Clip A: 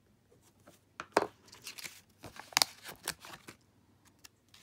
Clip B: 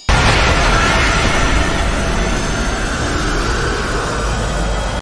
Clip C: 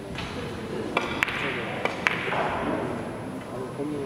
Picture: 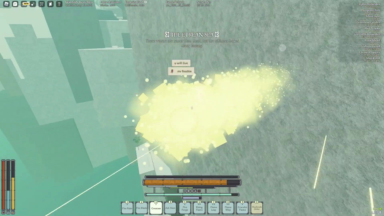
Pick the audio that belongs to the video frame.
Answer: B